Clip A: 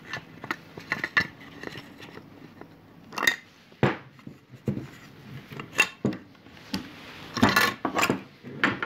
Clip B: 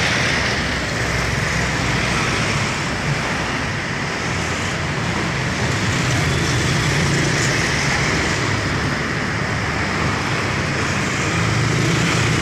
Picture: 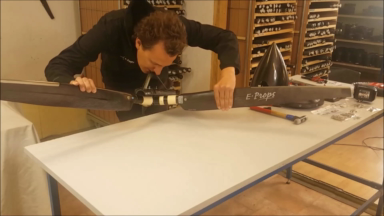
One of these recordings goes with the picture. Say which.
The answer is A